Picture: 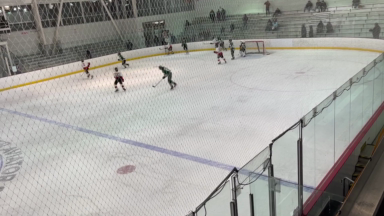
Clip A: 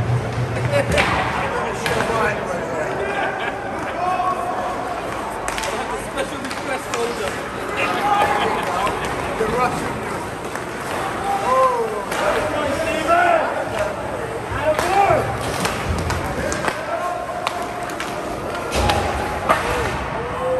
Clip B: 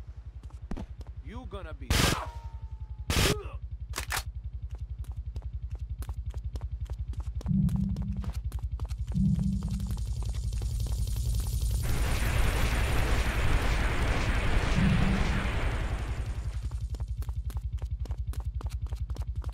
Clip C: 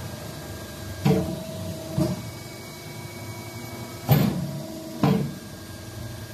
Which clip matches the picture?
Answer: A